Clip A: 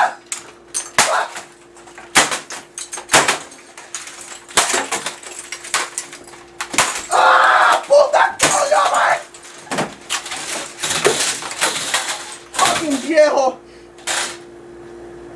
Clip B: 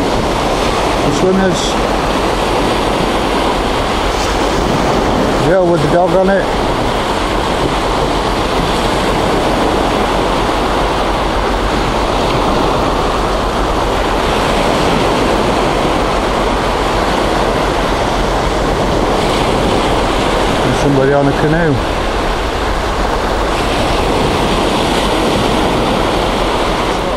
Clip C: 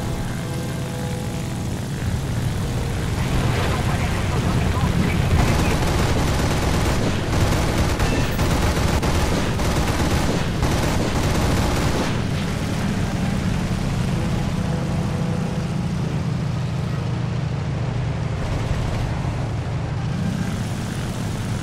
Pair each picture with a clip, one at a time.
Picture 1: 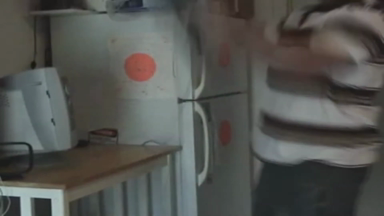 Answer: A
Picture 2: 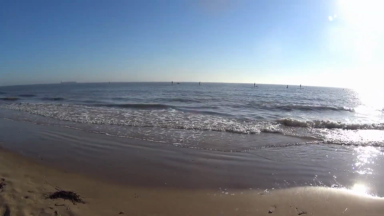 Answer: B